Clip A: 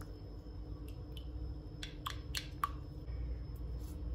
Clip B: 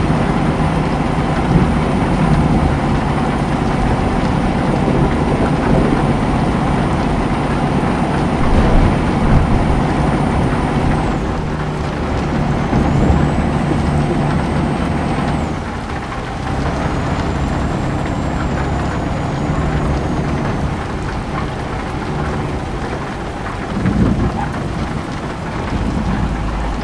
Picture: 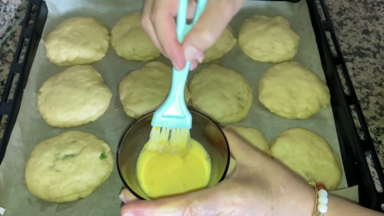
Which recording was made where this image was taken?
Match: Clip A